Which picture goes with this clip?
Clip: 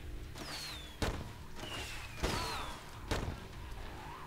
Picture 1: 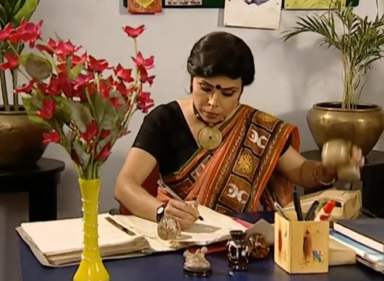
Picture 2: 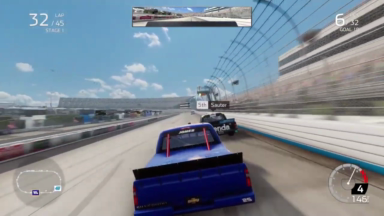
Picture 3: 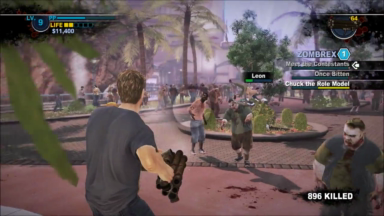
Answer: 3